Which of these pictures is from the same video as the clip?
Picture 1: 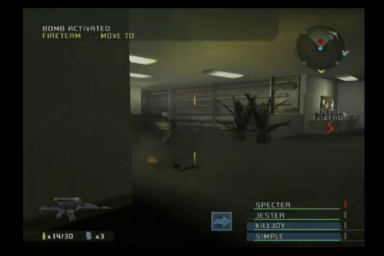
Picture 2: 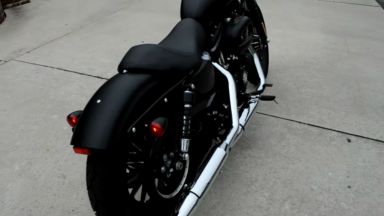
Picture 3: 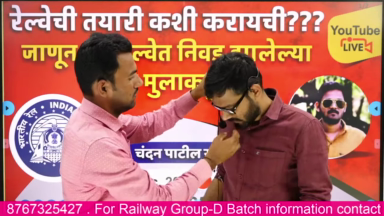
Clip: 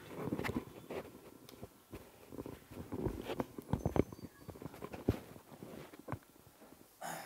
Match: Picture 3